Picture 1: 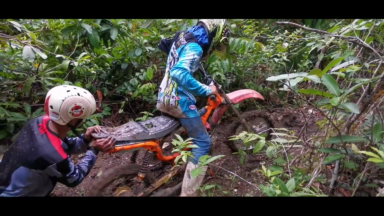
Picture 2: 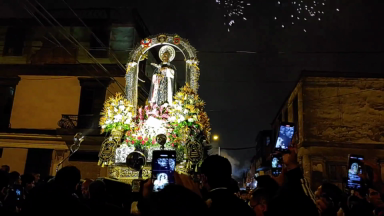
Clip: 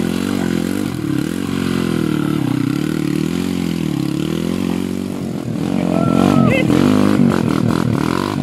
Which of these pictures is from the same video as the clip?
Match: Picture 1